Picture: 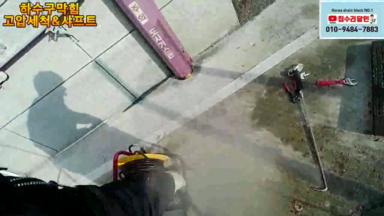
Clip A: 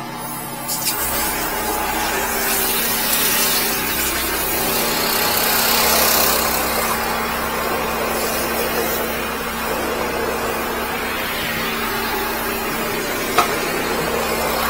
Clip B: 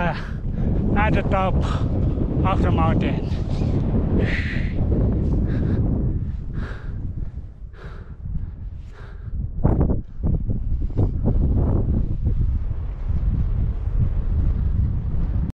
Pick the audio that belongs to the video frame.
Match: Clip A